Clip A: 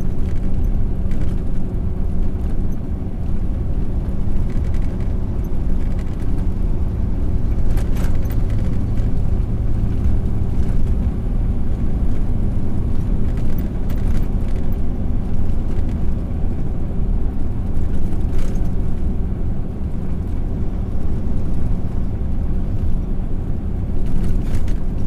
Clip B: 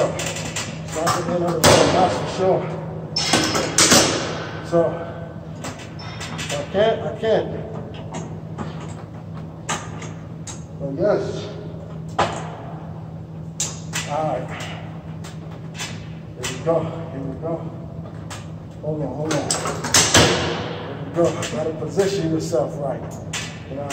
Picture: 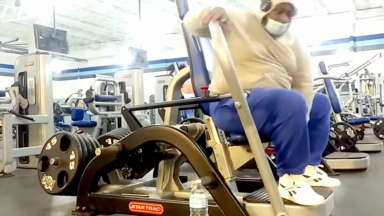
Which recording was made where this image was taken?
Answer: B